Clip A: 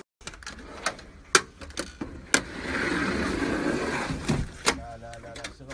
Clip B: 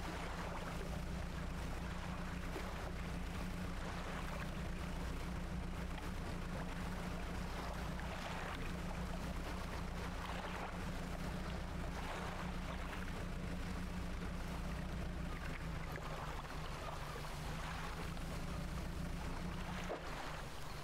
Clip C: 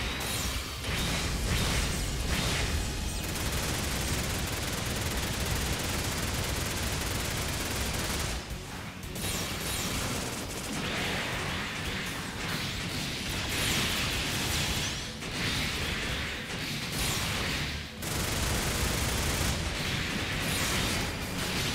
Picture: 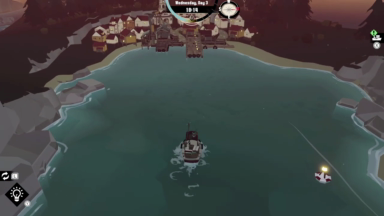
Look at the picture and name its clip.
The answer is B